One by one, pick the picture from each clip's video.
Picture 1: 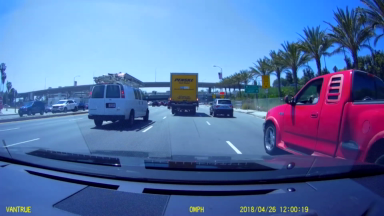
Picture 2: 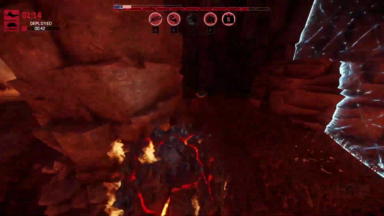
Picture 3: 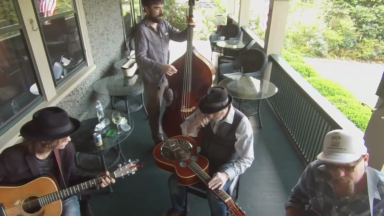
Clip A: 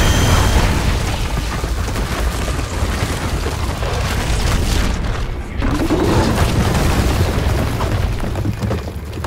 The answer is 2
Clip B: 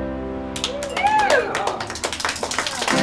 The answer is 3